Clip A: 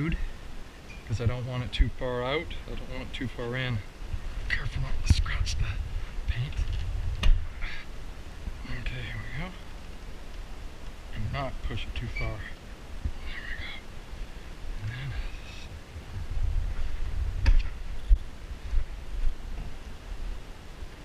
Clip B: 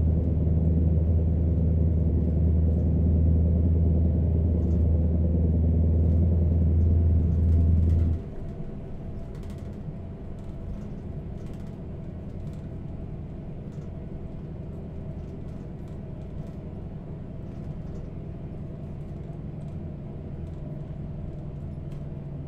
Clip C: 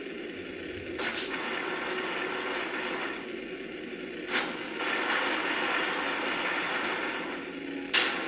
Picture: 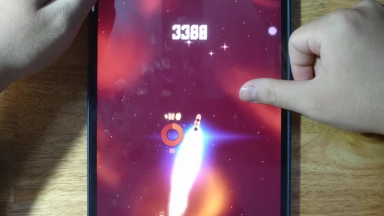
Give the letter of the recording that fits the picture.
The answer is C